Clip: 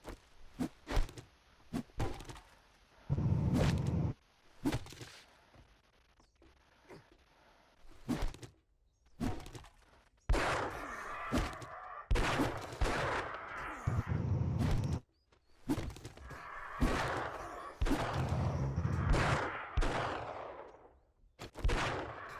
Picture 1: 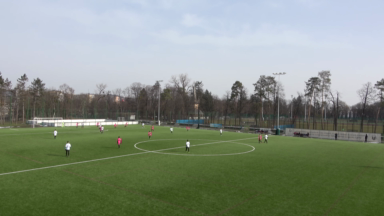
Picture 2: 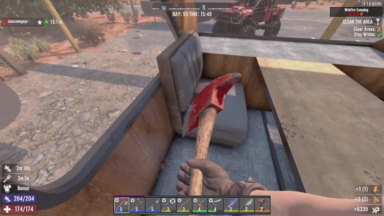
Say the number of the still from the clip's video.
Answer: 2